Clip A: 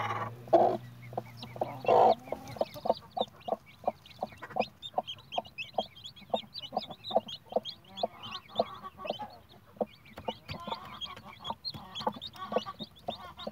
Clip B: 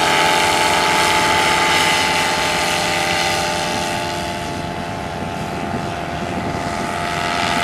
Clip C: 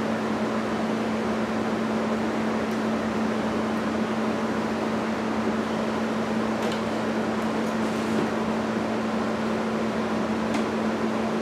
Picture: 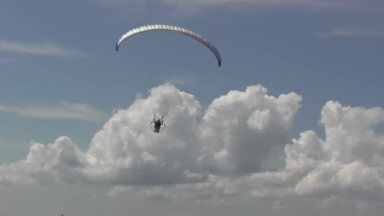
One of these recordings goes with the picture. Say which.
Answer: B